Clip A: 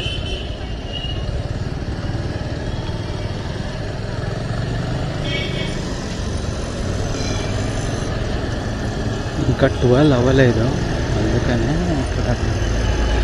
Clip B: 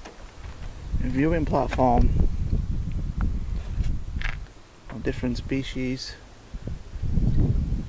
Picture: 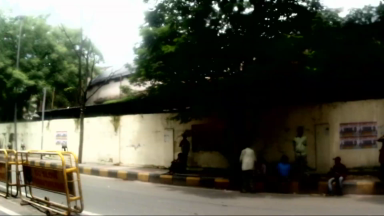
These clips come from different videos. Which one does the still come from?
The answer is A